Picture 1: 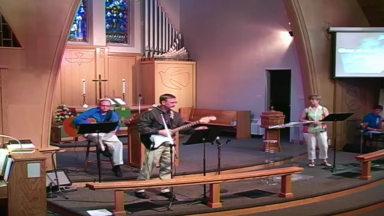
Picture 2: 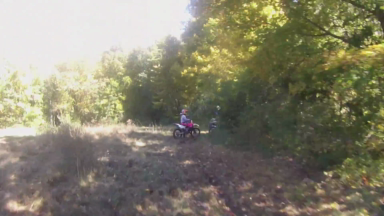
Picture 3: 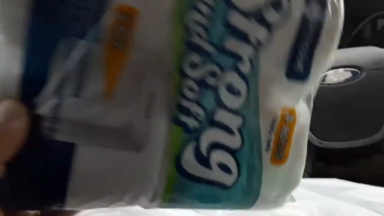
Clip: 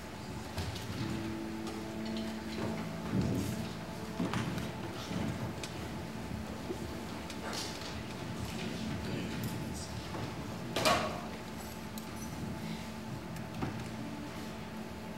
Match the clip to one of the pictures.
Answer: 1